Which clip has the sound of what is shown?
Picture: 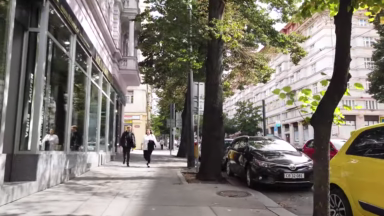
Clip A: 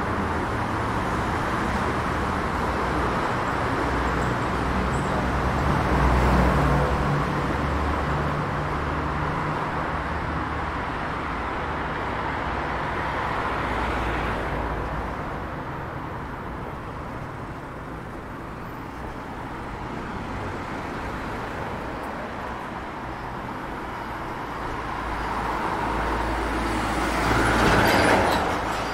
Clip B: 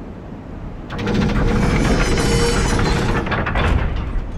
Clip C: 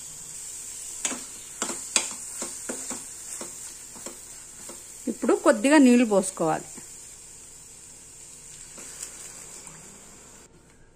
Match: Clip A